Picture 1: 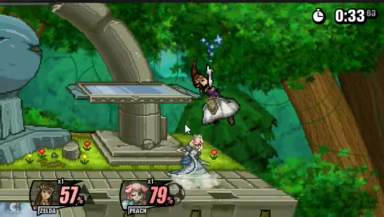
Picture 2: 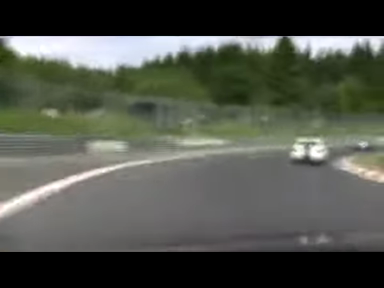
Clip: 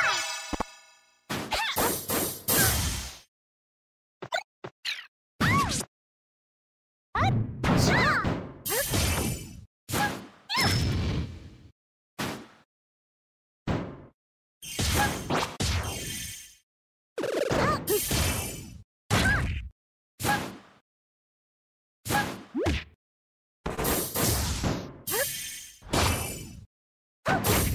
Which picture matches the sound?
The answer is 1